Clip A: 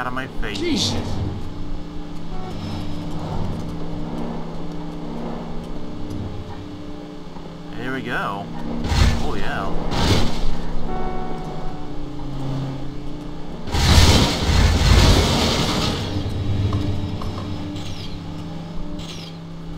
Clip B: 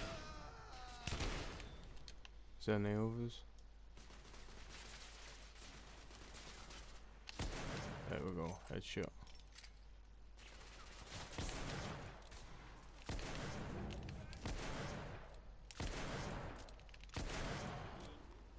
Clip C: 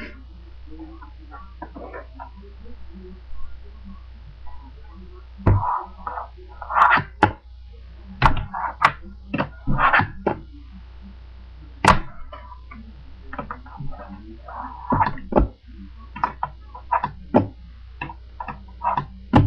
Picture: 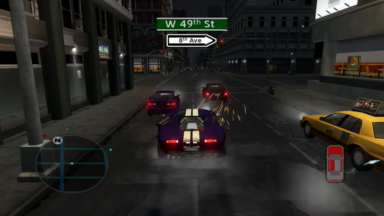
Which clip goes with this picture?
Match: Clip A